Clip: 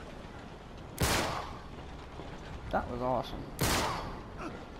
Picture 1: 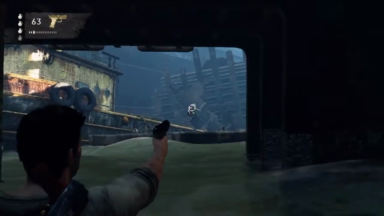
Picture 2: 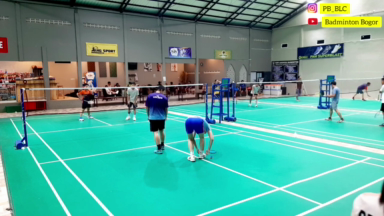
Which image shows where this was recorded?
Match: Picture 1